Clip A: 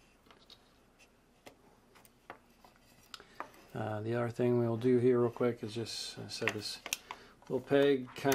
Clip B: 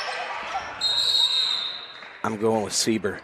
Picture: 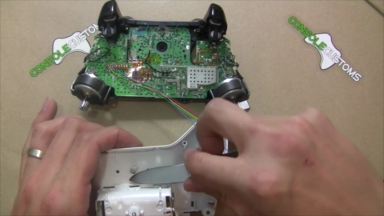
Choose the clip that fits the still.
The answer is A